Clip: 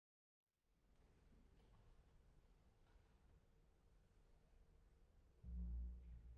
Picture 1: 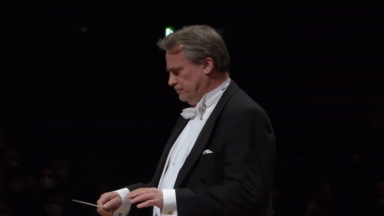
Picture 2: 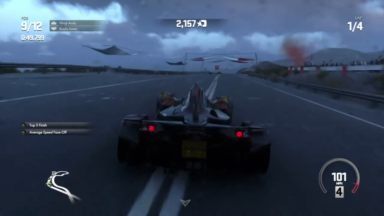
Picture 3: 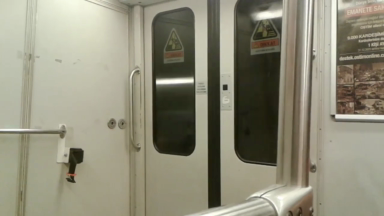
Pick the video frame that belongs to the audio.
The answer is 1